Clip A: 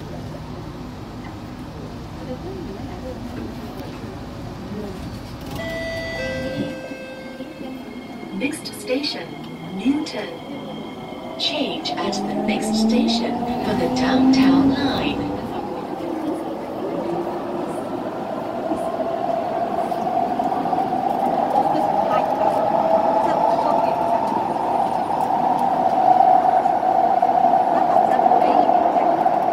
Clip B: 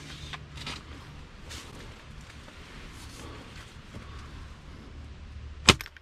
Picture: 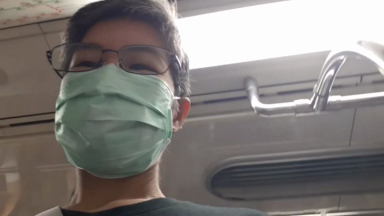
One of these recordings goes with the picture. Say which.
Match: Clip A